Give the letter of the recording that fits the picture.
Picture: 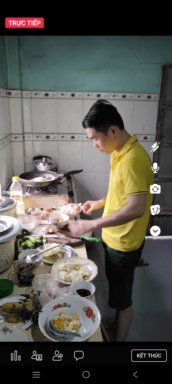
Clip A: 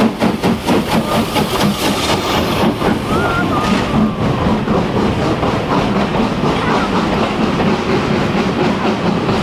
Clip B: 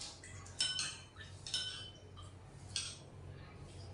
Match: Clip B